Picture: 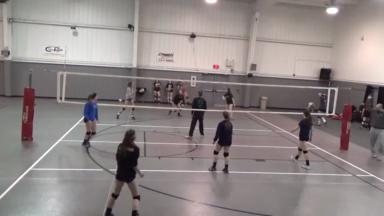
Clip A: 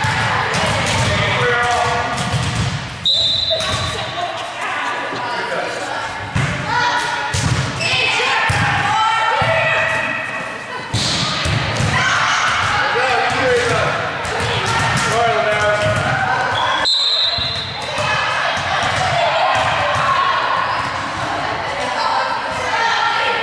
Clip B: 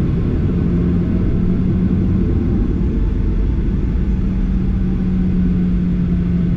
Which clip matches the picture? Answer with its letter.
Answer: A